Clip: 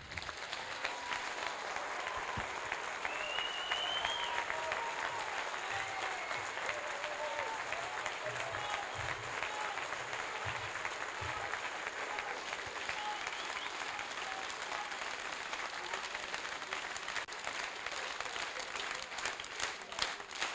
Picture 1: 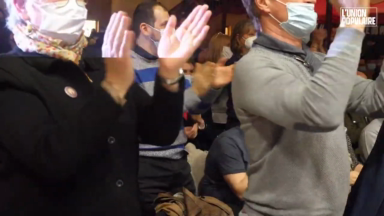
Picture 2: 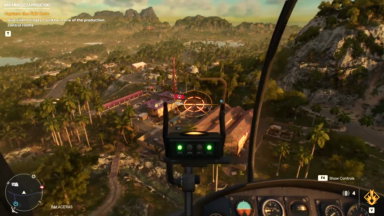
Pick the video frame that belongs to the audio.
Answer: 1